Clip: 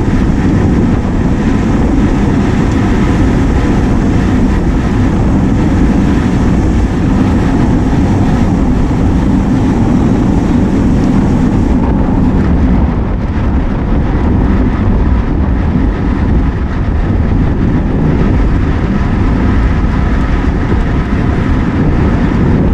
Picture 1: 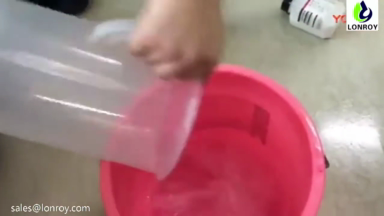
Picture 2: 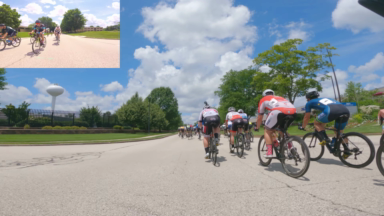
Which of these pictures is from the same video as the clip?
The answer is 2